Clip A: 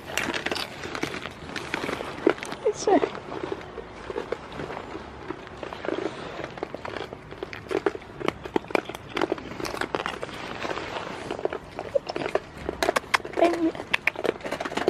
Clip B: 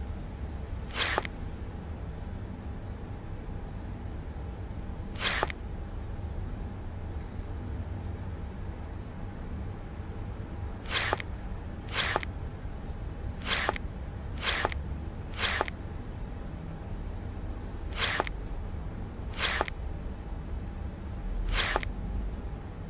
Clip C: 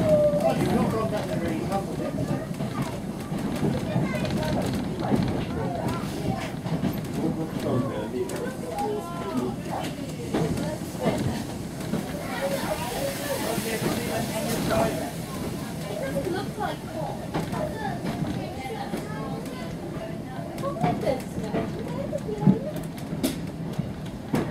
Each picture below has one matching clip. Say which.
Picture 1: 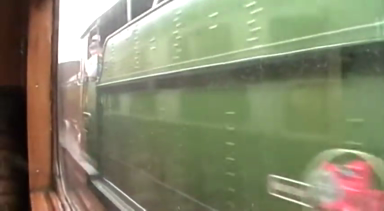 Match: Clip C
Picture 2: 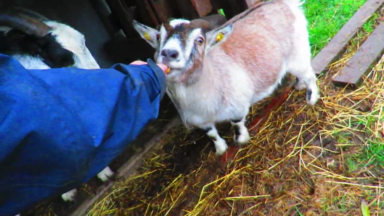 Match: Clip A